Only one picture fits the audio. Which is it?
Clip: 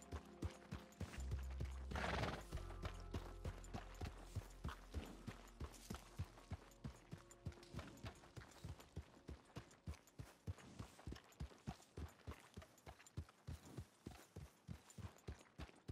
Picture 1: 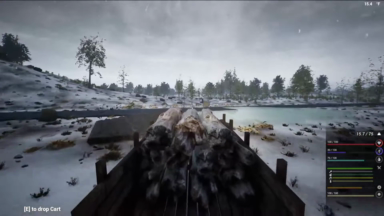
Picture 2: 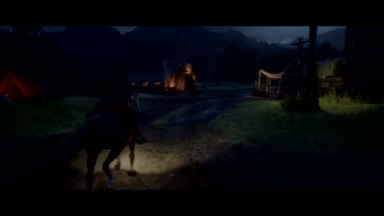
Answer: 2